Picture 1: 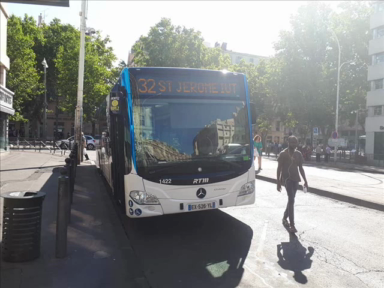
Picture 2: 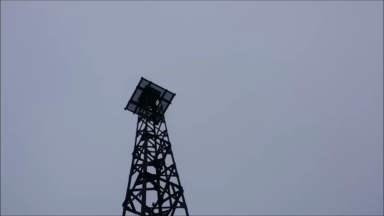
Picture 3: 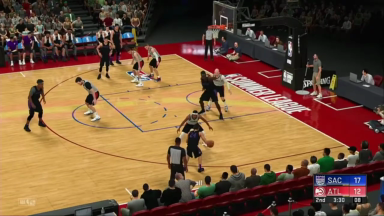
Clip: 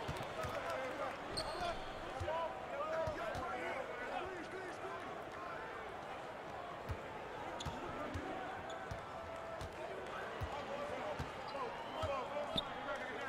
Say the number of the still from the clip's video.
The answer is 3